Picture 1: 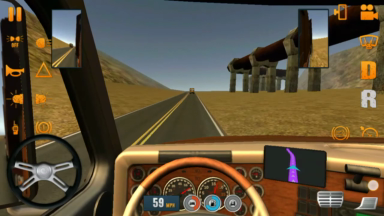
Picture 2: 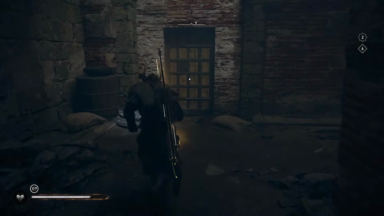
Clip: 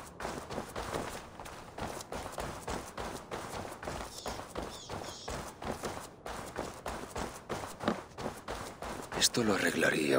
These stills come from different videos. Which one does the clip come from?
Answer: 2